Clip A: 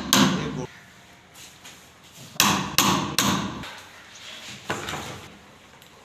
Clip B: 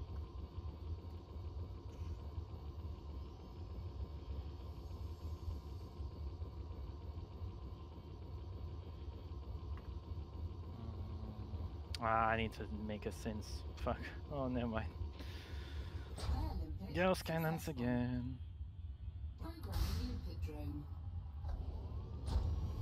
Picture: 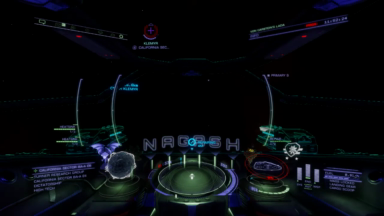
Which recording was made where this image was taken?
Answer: B